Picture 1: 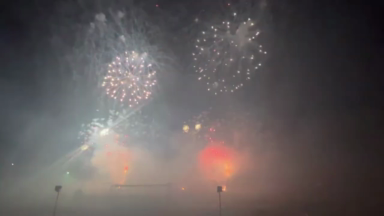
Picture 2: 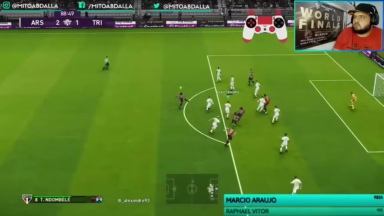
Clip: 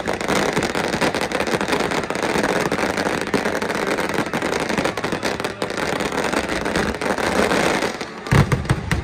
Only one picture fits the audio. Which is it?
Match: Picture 1